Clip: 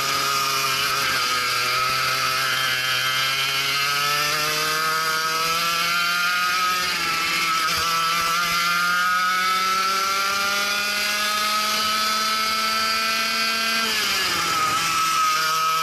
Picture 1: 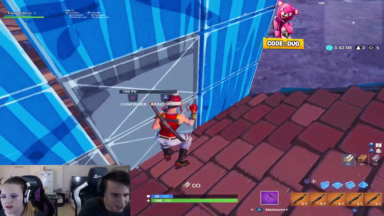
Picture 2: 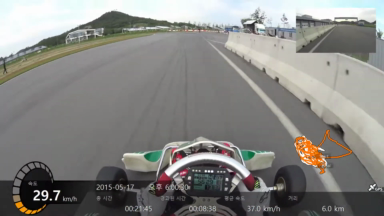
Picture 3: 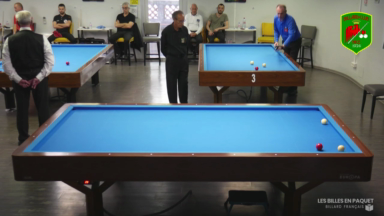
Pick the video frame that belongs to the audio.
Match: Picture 2